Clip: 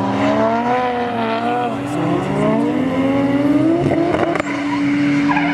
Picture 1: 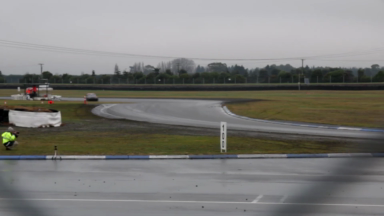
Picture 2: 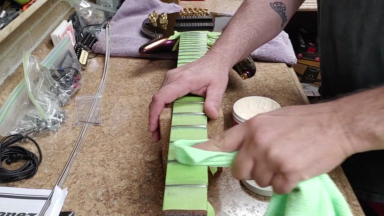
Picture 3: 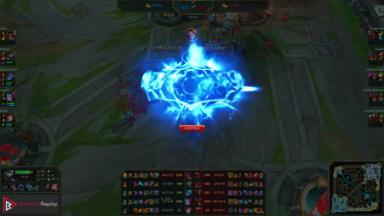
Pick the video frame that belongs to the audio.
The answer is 1